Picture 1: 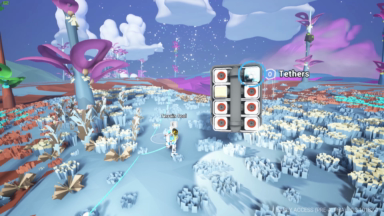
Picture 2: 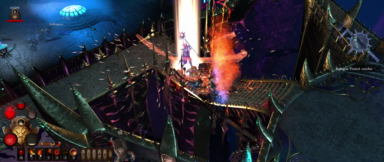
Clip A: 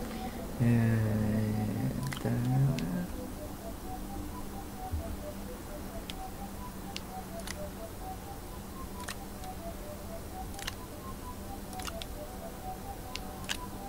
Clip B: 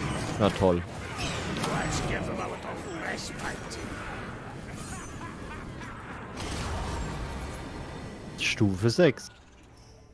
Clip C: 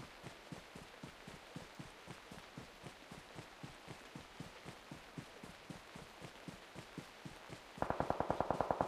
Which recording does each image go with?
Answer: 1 A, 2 B